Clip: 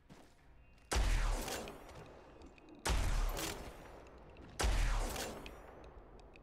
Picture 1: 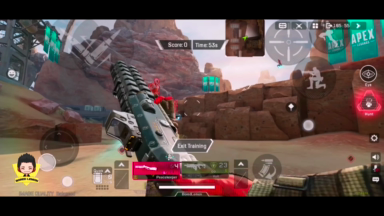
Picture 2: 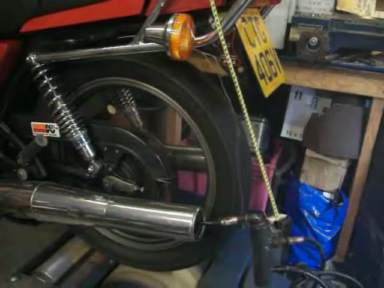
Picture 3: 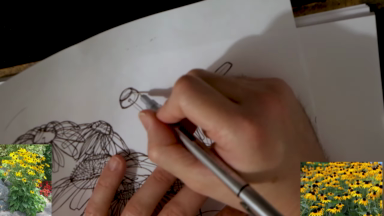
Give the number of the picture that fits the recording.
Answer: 1